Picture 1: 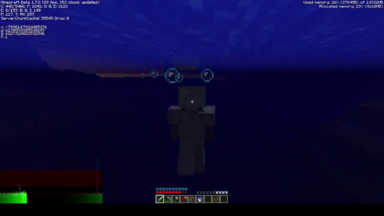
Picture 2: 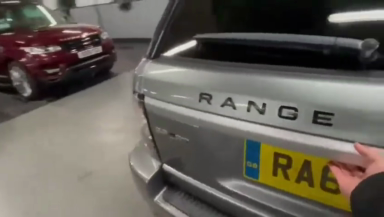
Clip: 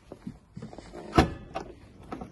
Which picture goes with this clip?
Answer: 2